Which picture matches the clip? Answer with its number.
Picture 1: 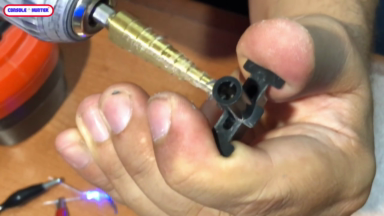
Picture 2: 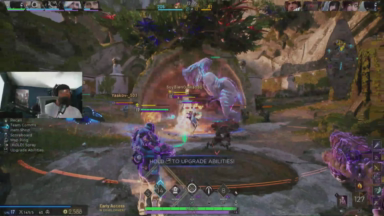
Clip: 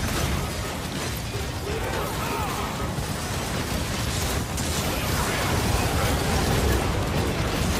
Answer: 2